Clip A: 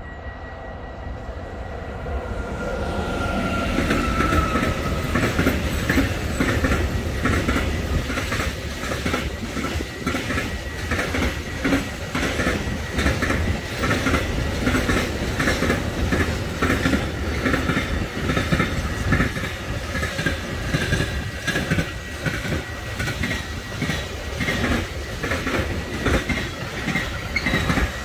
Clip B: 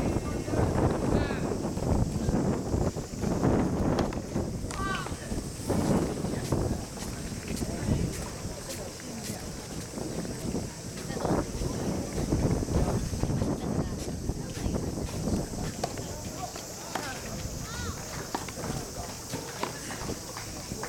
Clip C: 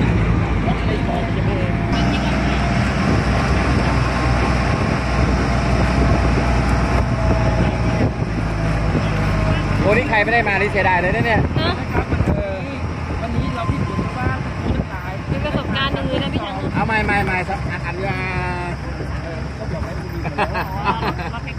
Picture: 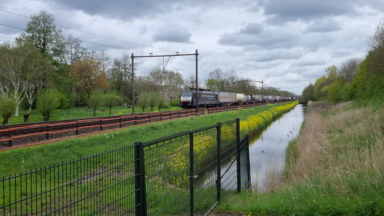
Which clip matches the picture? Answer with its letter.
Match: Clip A